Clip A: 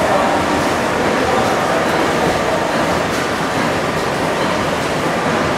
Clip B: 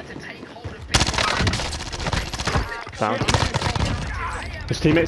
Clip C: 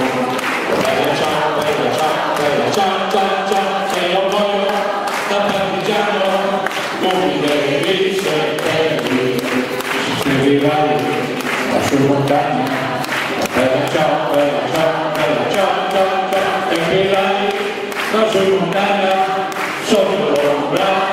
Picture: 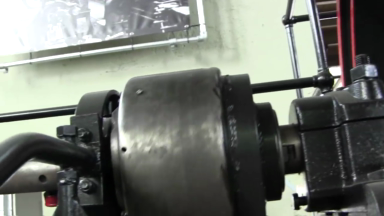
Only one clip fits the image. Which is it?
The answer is A